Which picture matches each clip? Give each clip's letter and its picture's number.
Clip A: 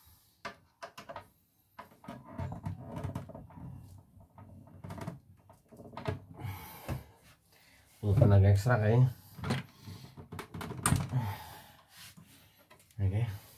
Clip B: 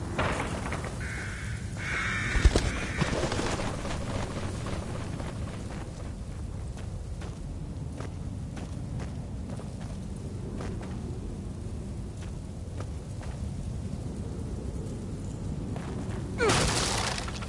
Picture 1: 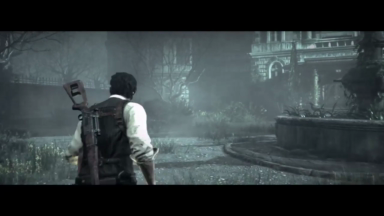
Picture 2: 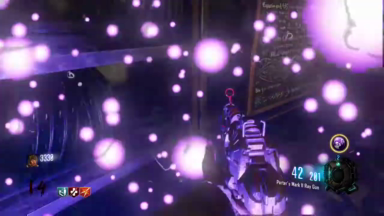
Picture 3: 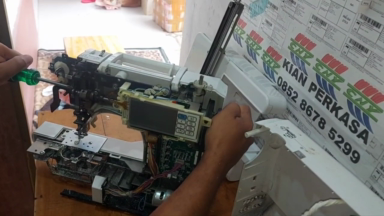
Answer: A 3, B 1